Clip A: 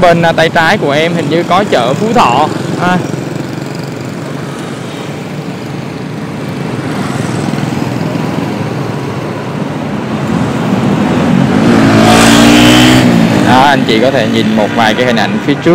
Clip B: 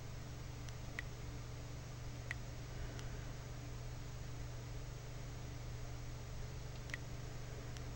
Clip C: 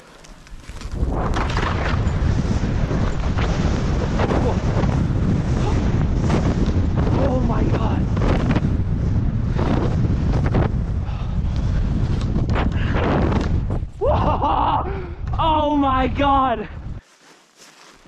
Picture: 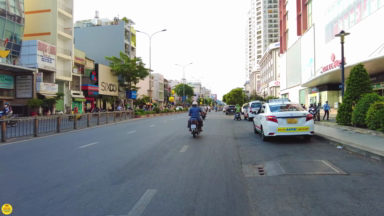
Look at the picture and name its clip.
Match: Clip A